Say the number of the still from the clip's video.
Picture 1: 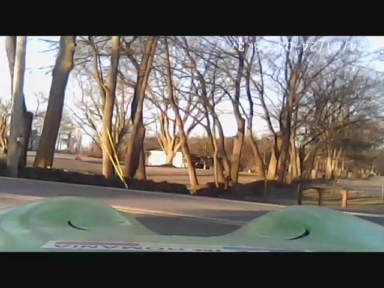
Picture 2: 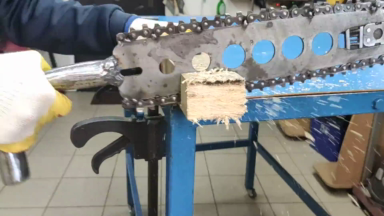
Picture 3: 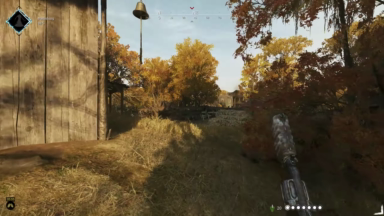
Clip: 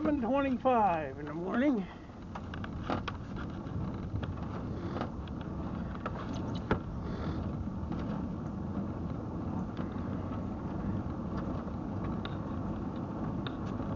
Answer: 1